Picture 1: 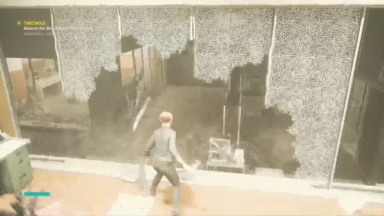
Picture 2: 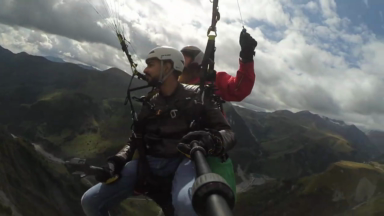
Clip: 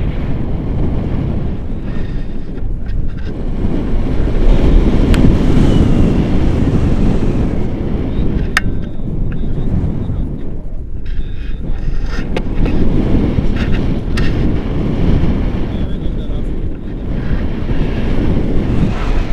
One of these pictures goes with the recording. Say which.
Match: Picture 2